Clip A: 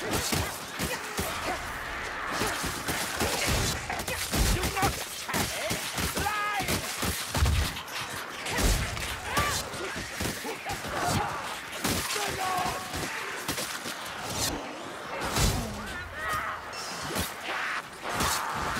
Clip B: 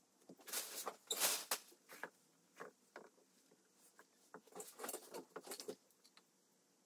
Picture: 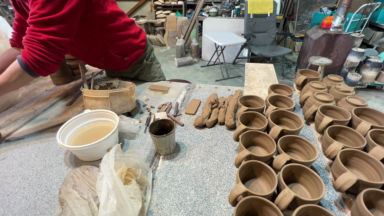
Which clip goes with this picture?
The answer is B